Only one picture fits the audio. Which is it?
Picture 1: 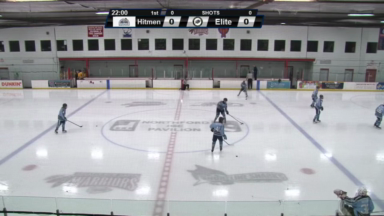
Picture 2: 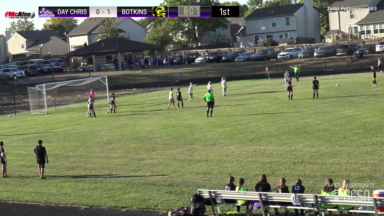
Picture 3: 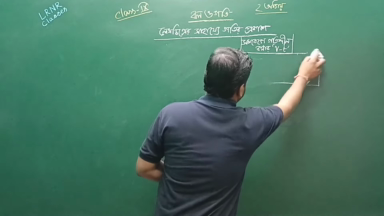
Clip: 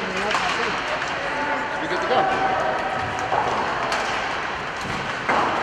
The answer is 1